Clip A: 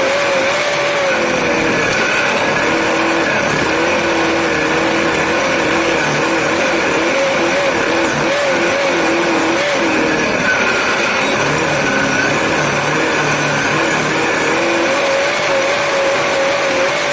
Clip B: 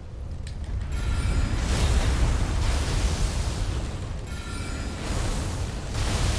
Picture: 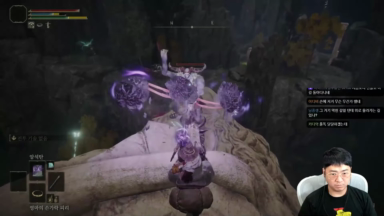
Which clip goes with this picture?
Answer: B